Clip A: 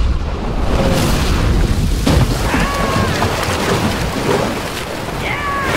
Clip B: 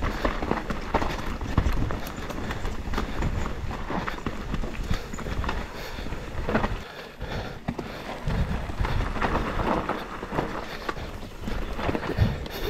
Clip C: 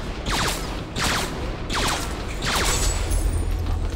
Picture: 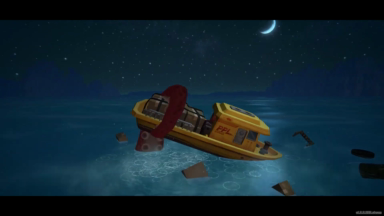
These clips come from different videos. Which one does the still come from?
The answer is A